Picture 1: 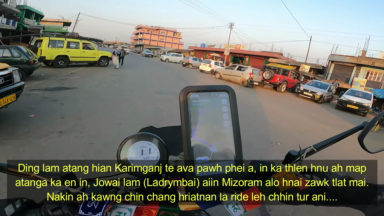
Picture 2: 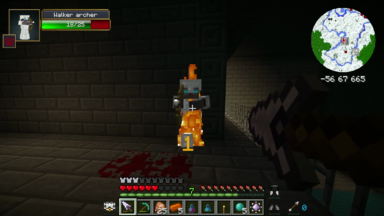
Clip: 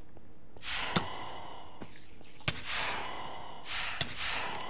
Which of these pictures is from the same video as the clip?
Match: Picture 2